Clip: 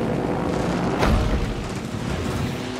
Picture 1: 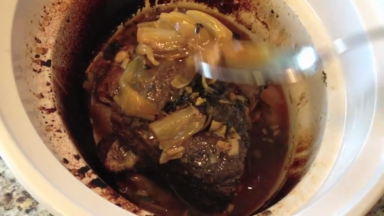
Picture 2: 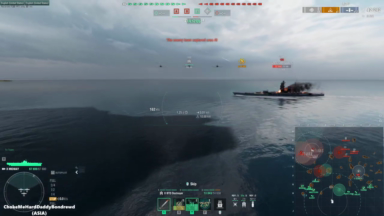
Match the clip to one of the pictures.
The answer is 2